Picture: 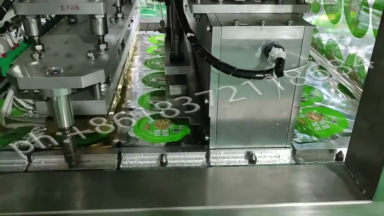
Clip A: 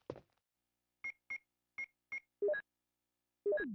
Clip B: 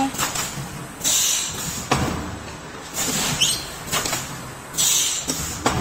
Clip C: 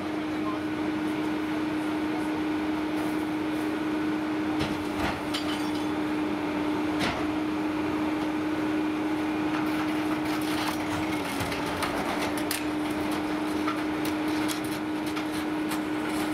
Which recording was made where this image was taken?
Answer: B